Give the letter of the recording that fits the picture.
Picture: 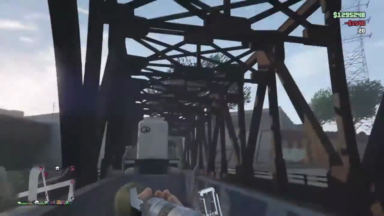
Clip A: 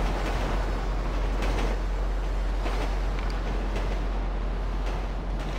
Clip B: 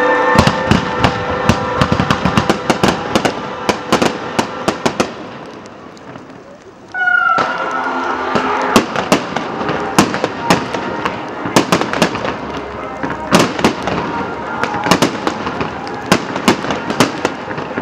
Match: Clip A